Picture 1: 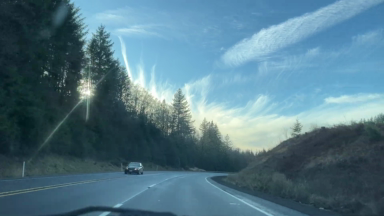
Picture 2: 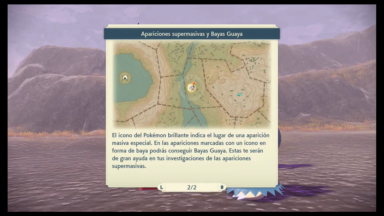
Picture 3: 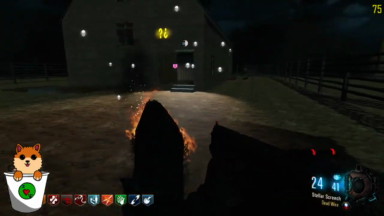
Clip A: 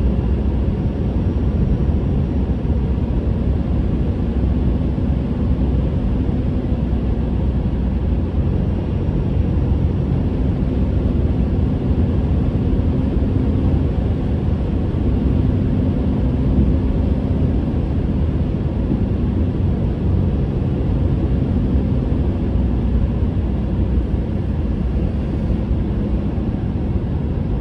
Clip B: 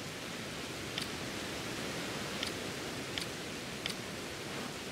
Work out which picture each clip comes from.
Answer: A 1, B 2